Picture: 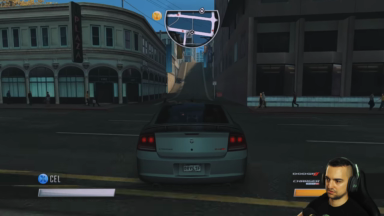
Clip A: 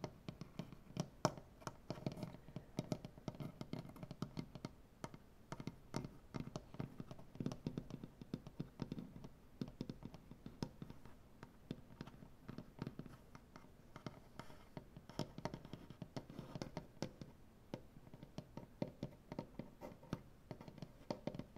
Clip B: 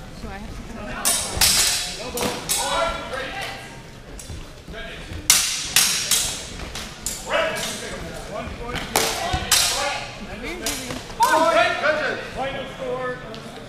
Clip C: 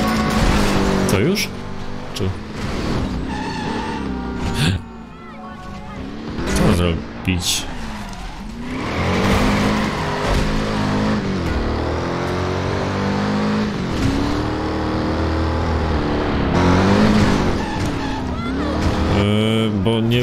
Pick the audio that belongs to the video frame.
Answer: C